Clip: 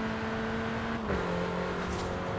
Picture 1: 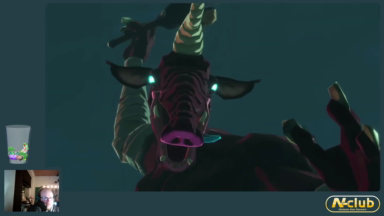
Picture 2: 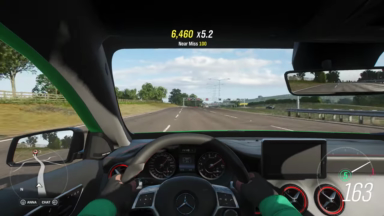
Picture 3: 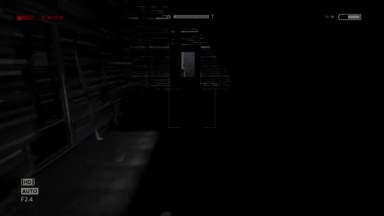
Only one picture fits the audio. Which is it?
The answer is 2